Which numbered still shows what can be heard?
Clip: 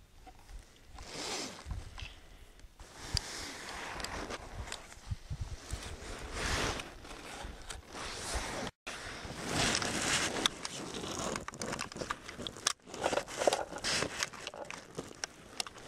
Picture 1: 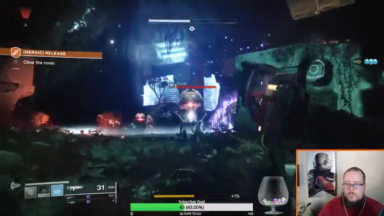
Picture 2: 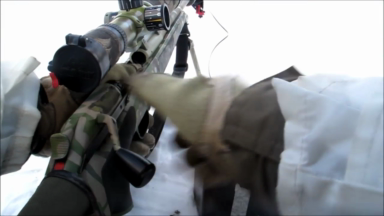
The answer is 2